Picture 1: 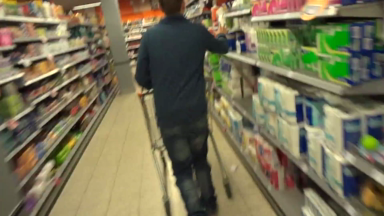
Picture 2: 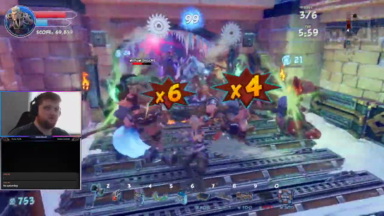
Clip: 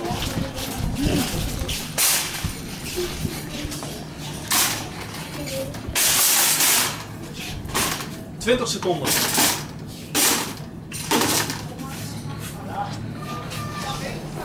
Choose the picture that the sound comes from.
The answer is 1